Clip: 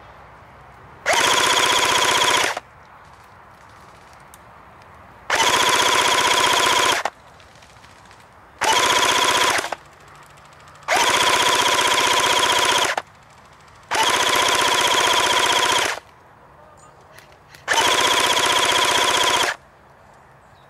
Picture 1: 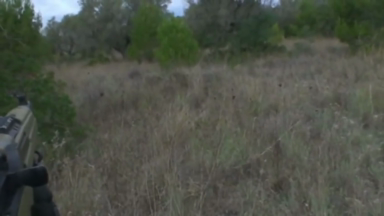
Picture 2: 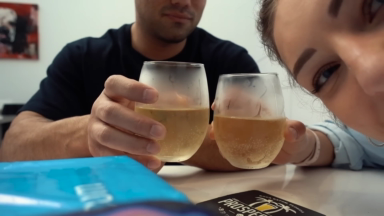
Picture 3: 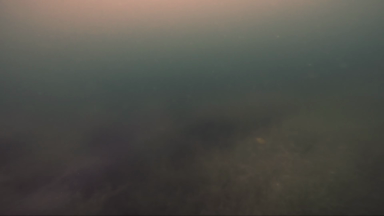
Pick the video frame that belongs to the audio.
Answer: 1